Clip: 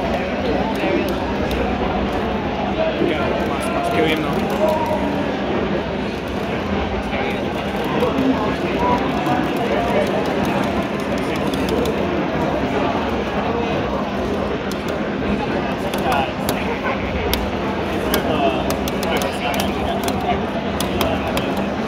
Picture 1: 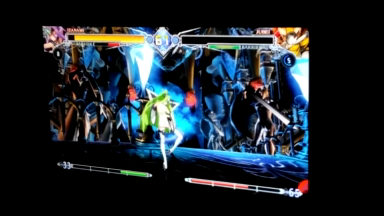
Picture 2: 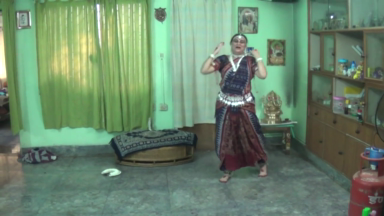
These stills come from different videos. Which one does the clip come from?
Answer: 1